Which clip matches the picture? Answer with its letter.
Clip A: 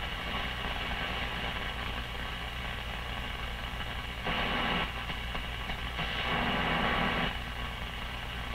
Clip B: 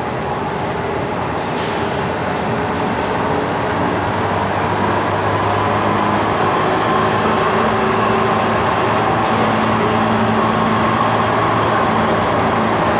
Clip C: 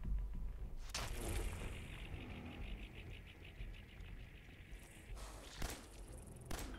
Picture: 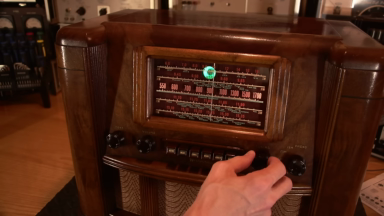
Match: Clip A